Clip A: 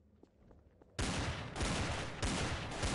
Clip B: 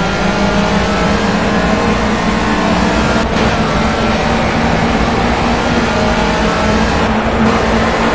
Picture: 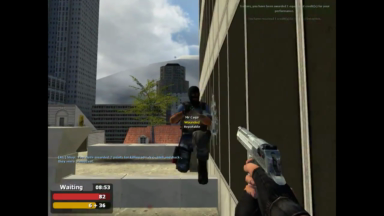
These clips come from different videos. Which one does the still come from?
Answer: A